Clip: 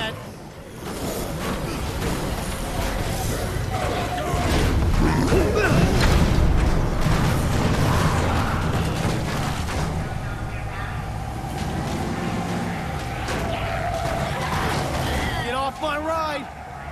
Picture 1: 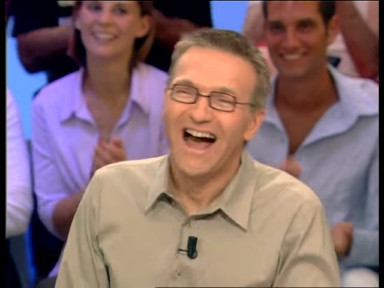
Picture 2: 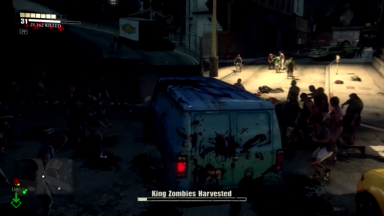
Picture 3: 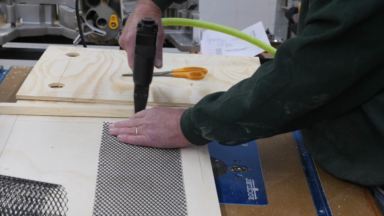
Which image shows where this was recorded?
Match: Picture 2